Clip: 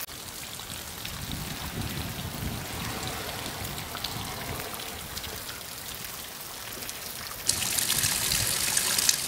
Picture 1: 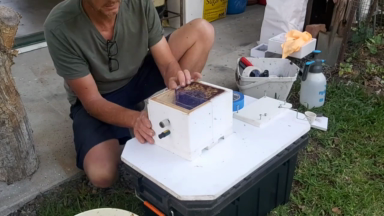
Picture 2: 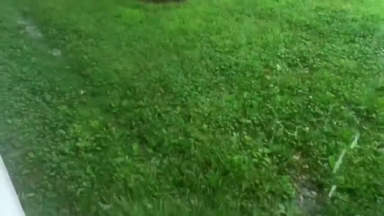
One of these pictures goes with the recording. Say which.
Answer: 2